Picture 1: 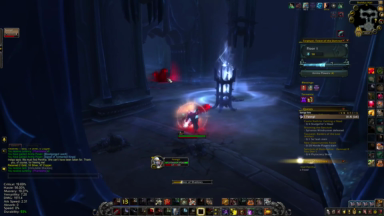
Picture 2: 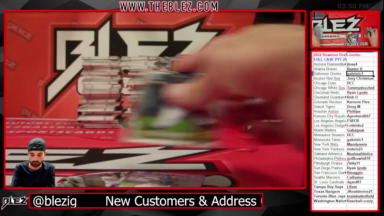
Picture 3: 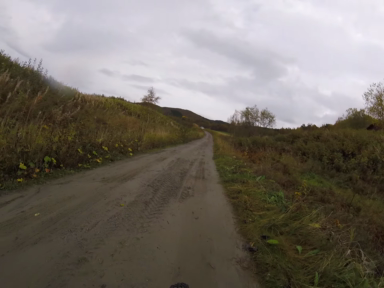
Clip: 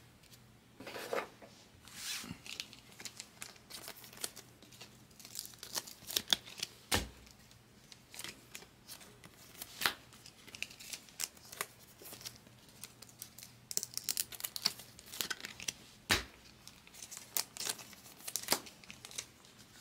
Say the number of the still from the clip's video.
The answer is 2